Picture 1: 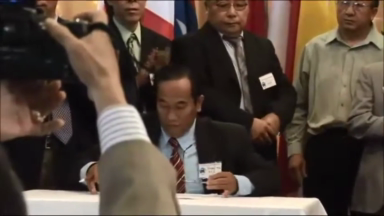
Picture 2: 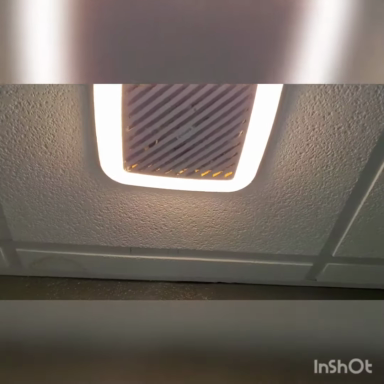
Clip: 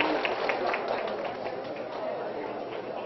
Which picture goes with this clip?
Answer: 1